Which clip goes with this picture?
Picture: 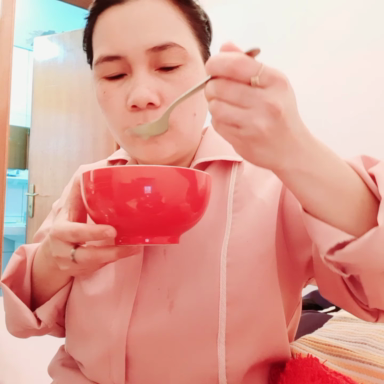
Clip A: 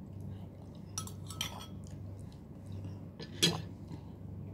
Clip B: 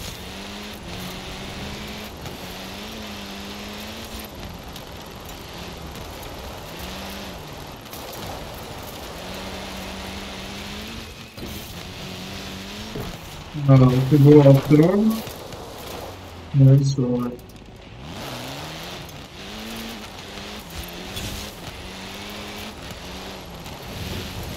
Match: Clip A